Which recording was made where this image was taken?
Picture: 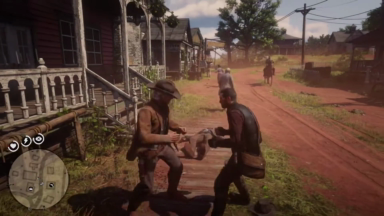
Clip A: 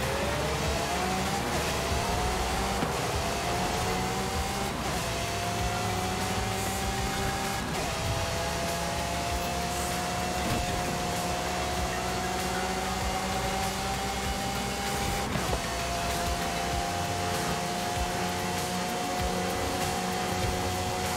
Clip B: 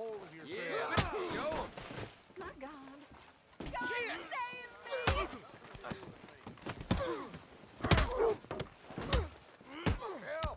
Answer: B